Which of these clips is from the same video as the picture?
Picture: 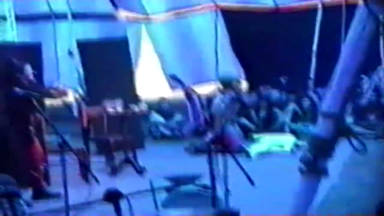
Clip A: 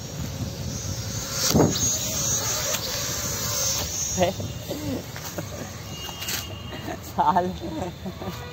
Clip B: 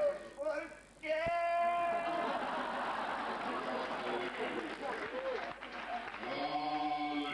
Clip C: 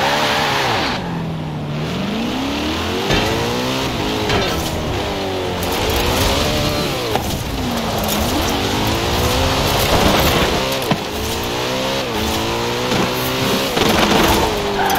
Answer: B